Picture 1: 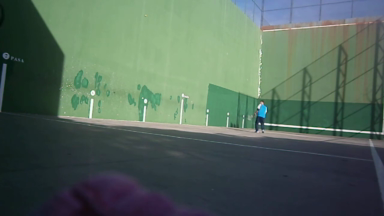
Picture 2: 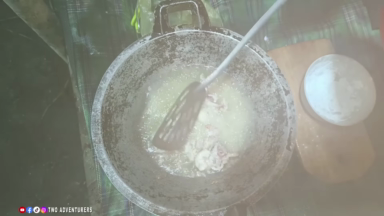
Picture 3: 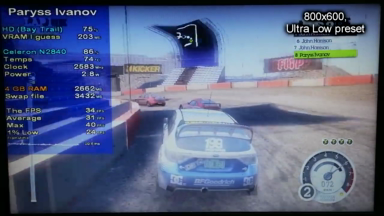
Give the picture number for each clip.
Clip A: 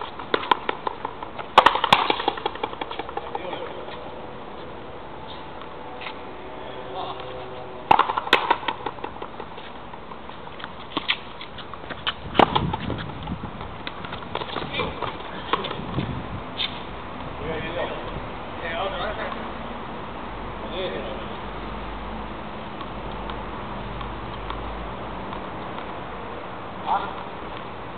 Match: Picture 1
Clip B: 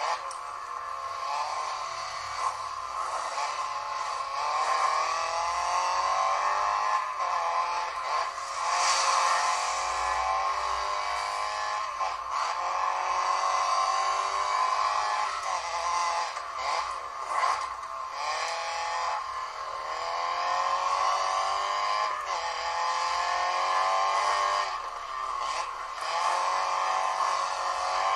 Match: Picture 3